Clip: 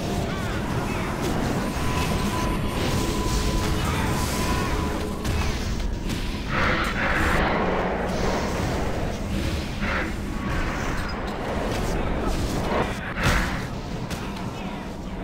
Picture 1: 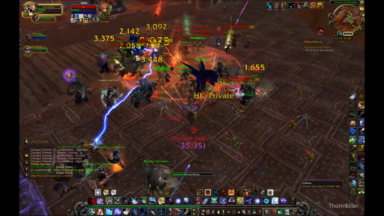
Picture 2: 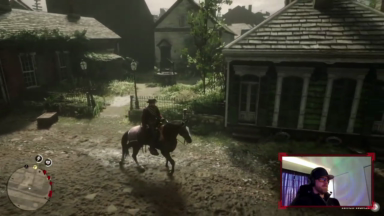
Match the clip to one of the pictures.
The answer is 1